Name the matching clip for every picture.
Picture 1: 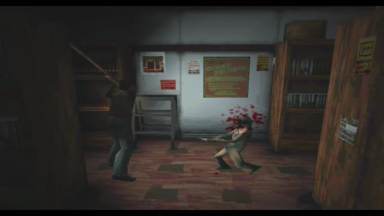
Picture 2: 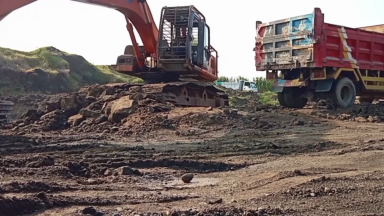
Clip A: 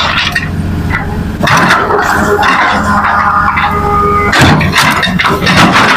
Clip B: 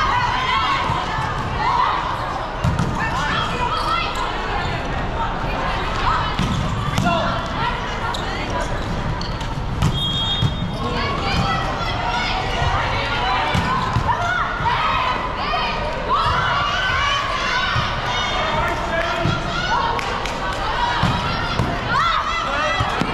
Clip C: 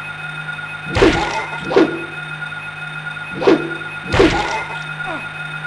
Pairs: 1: C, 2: A